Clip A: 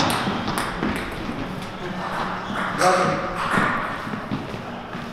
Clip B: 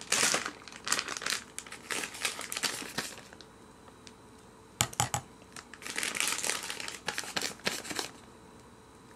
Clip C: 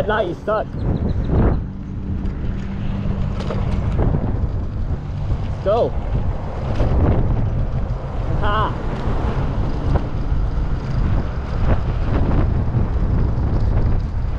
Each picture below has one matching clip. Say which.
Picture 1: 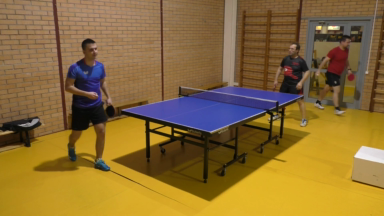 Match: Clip A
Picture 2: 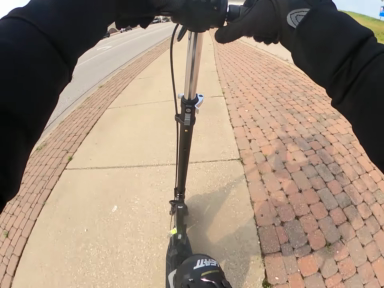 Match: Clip C